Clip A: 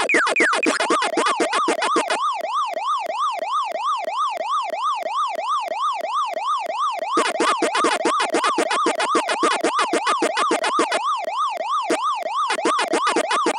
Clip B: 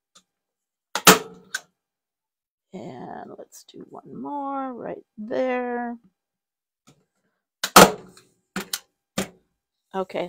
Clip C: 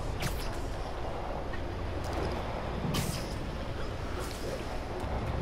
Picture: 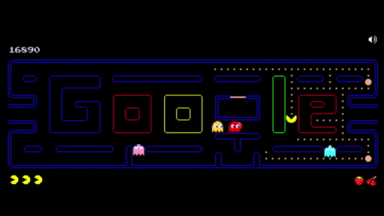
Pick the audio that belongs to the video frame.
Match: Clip A